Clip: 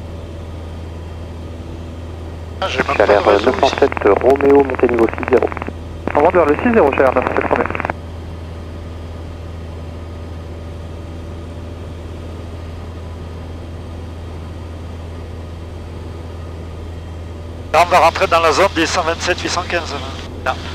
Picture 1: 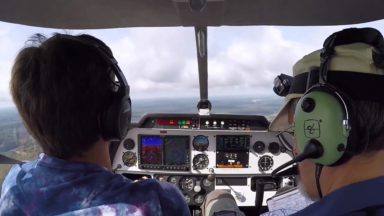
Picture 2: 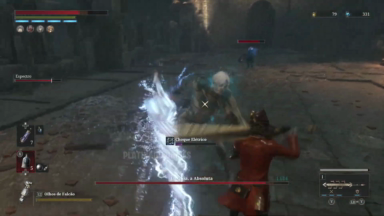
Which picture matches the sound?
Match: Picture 1